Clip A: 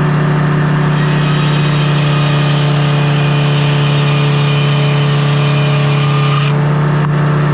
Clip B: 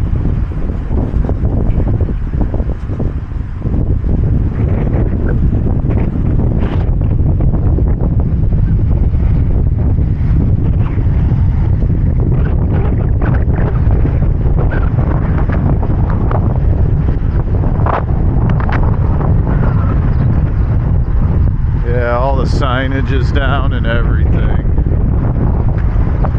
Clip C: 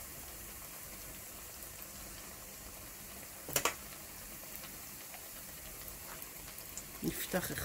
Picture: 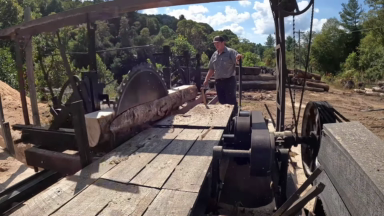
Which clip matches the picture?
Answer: A